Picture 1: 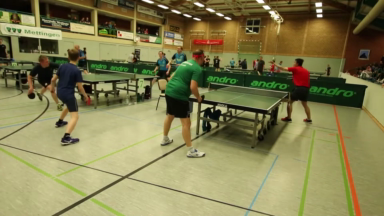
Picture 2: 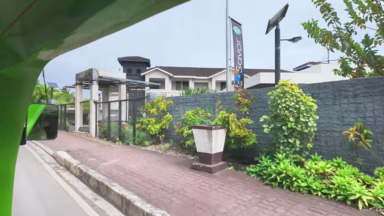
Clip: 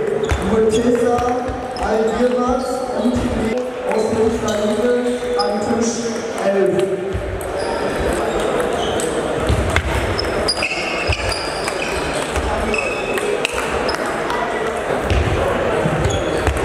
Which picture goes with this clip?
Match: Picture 1